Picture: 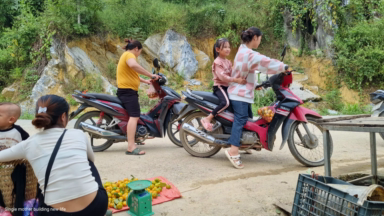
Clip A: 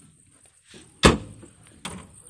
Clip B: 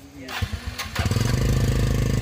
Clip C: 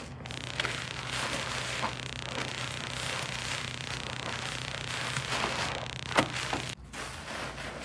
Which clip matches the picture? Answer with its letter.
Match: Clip B